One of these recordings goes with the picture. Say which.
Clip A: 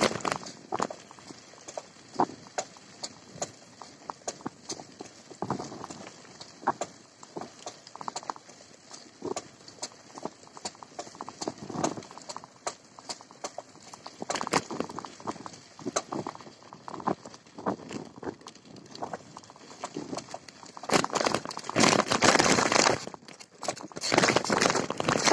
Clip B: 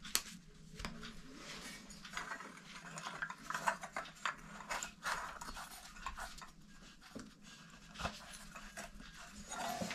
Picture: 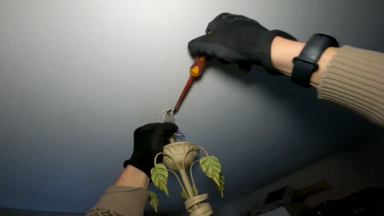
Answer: B